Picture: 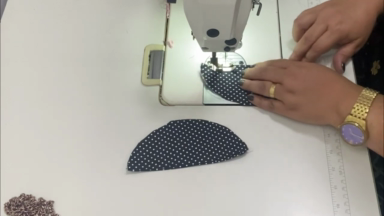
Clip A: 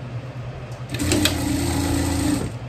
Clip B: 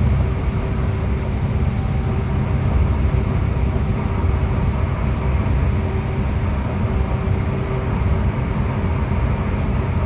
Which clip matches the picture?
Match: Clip A